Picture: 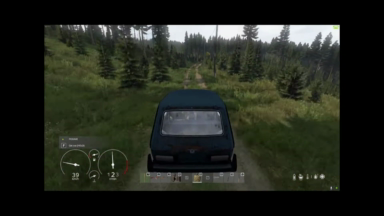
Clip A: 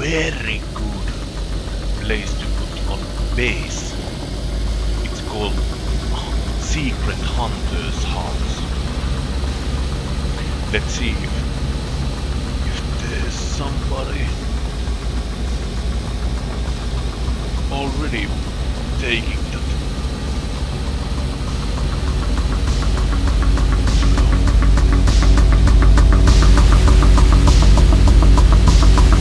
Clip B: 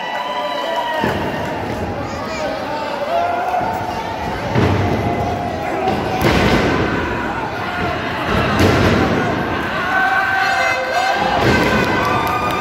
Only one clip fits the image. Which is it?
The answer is A